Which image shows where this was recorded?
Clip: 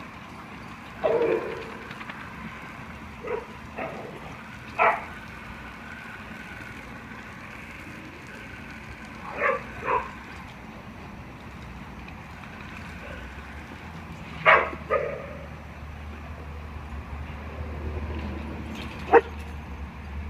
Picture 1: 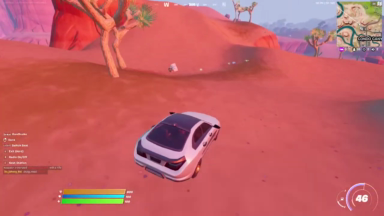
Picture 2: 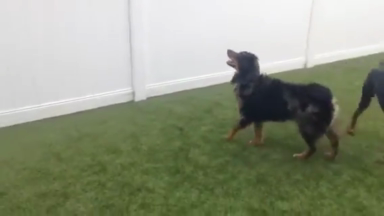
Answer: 2